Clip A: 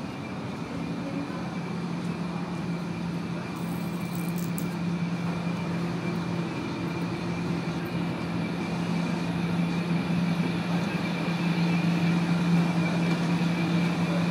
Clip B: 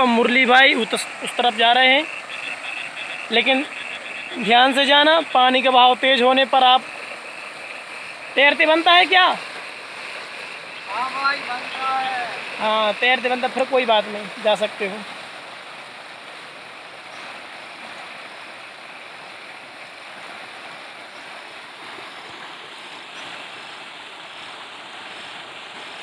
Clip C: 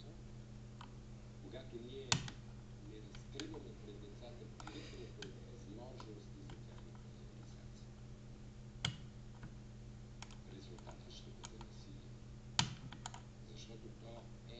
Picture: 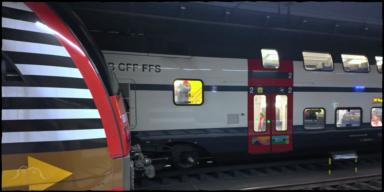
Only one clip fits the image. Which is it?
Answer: A